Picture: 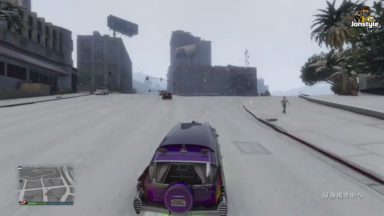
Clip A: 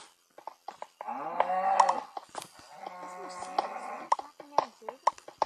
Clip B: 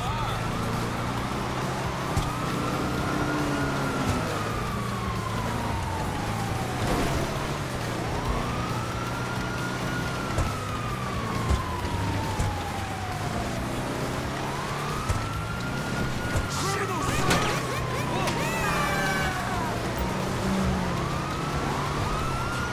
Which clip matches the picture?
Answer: B